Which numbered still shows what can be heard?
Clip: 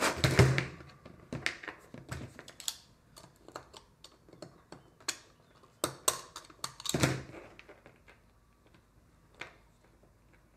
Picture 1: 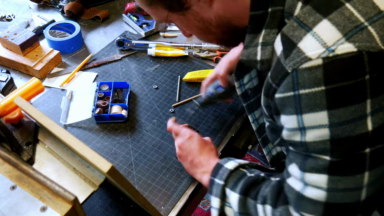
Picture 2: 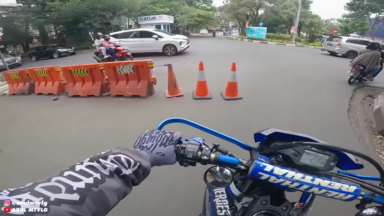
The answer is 1